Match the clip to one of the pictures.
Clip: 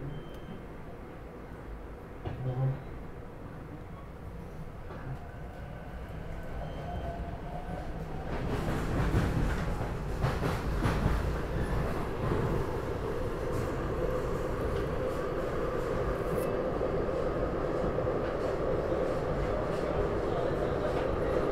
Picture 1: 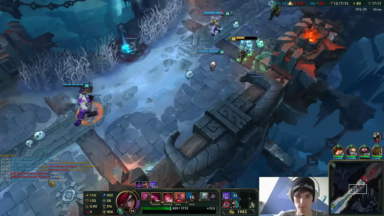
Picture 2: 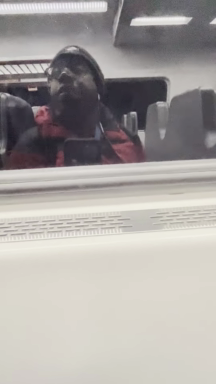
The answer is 2